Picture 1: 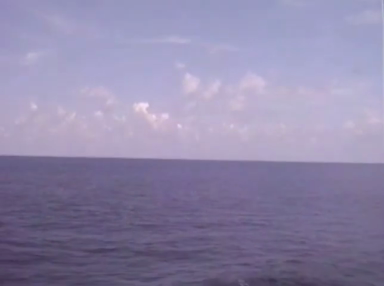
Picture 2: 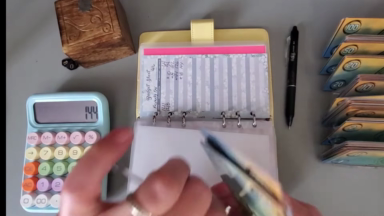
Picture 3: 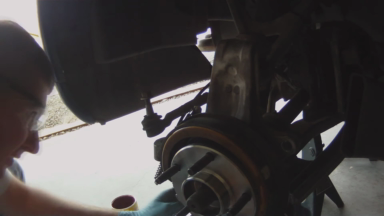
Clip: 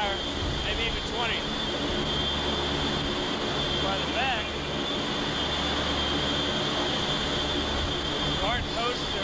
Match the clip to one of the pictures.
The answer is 1